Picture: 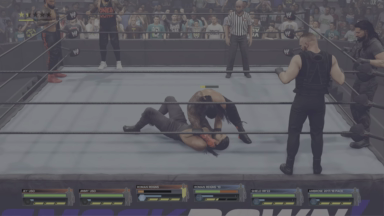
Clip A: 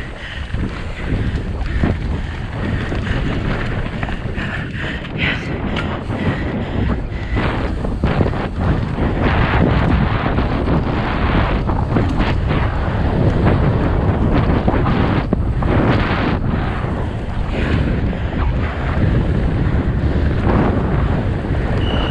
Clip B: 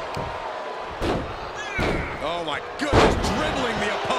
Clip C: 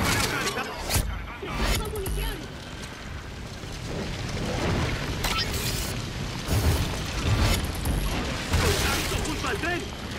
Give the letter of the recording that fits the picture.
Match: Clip B